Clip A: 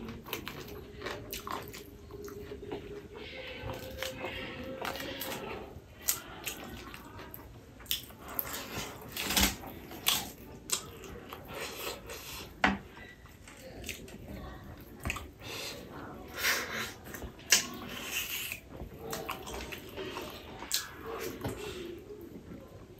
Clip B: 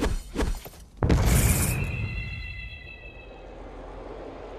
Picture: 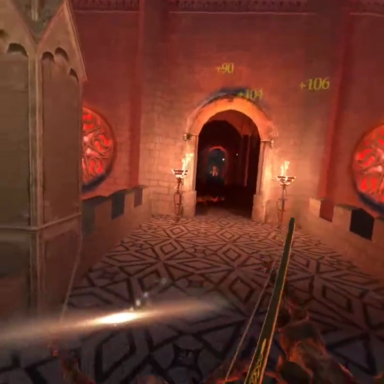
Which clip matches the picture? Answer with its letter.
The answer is B